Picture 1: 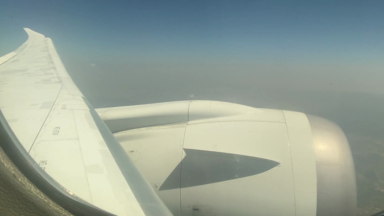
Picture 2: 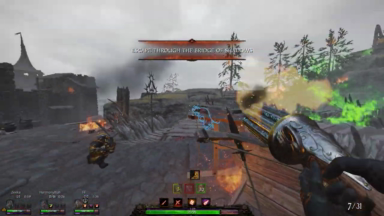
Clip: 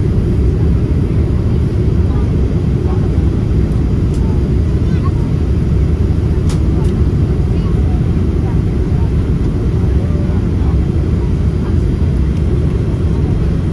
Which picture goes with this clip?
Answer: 1